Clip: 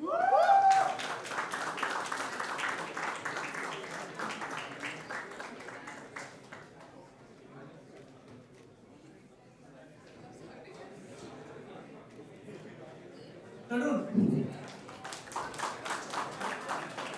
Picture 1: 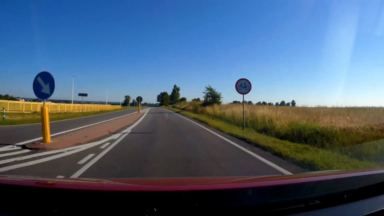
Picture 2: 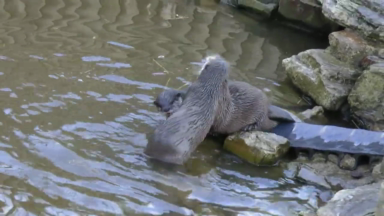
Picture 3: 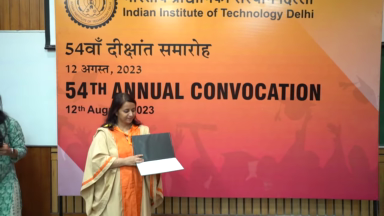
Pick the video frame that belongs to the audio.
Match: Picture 3